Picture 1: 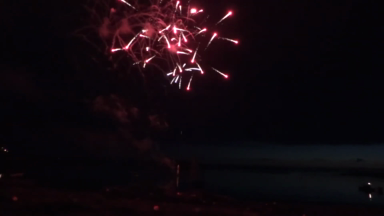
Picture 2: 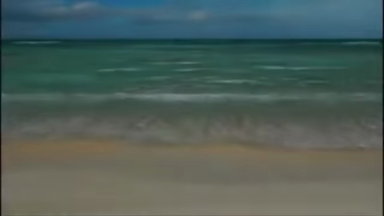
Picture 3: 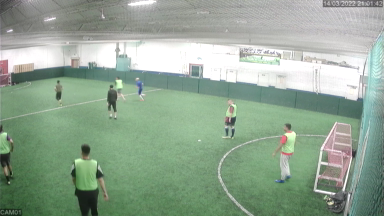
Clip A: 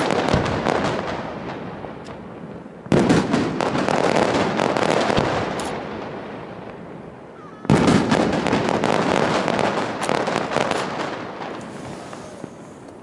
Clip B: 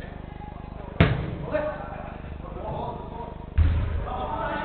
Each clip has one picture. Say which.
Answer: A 1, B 3